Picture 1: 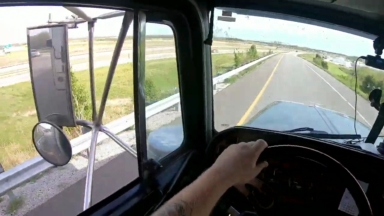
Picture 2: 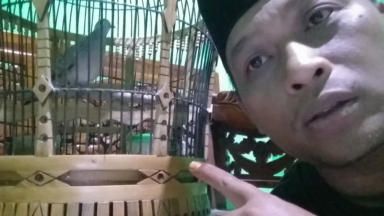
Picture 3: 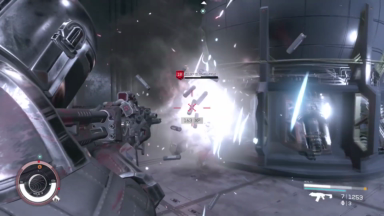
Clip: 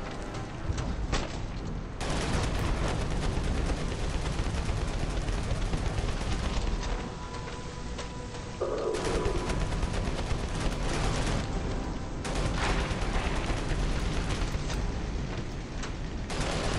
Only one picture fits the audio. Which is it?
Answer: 3